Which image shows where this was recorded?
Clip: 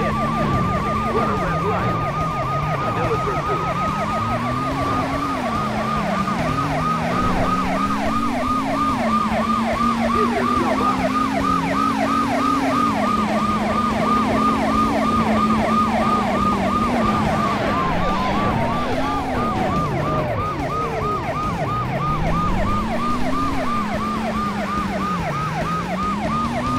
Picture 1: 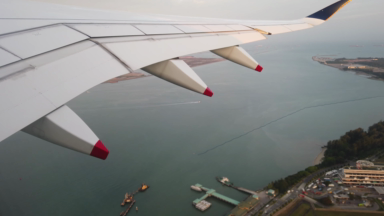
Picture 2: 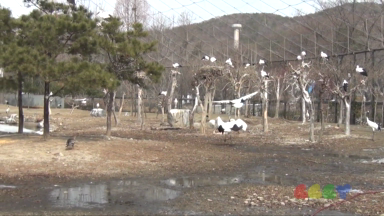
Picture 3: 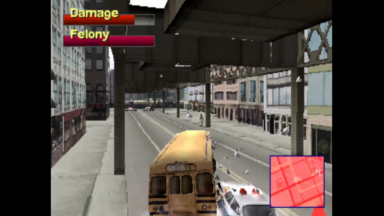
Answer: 3